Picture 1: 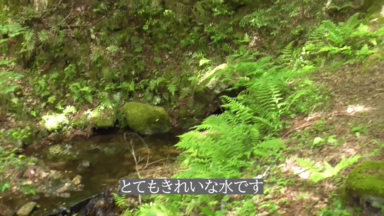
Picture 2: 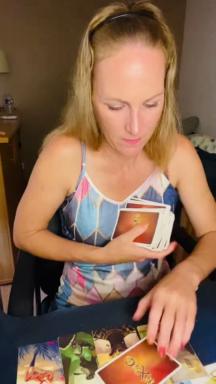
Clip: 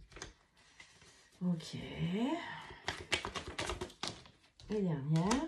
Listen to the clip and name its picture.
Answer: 2